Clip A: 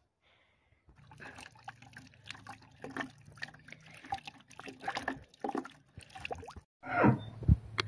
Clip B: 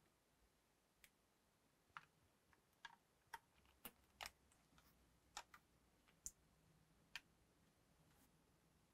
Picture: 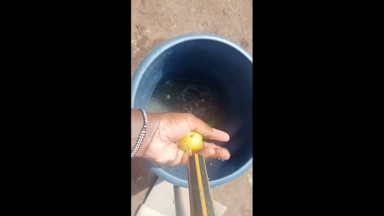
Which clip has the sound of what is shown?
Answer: A